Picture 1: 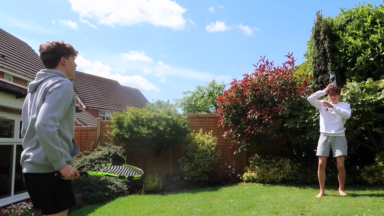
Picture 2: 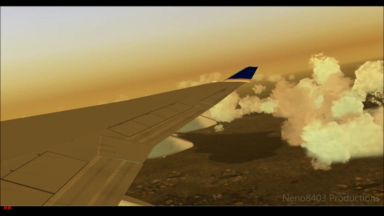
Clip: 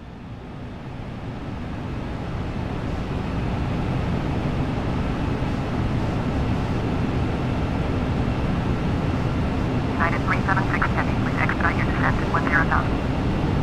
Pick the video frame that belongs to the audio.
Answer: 2